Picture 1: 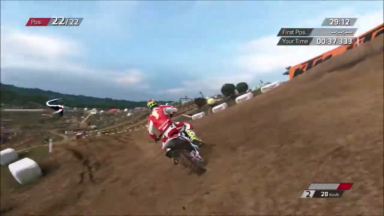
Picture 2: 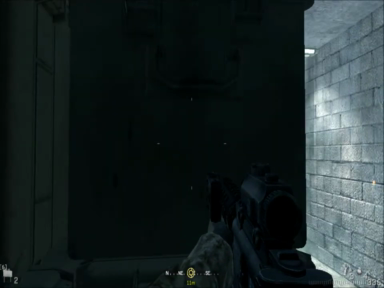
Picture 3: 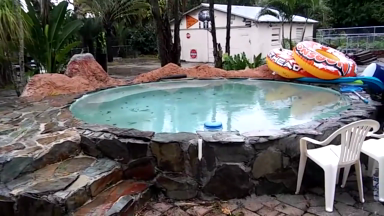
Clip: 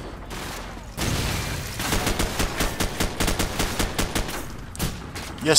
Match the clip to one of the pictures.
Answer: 2